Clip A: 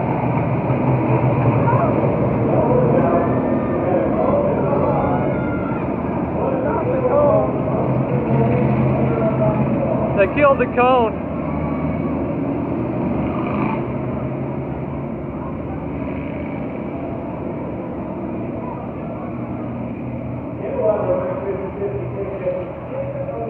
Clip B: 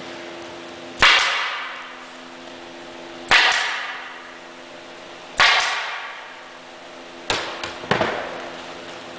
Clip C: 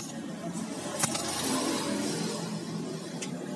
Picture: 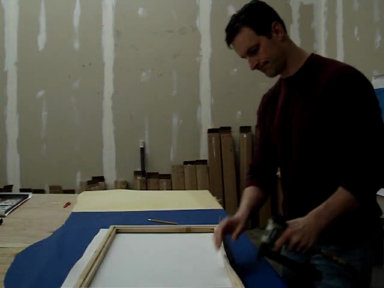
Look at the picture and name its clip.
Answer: B